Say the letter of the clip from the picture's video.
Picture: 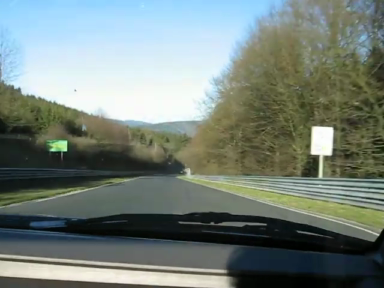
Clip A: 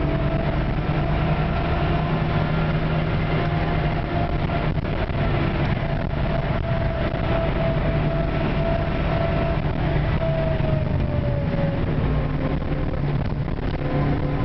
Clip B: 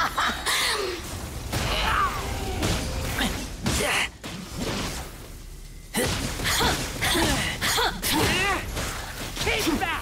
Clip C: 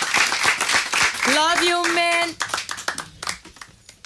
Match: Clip A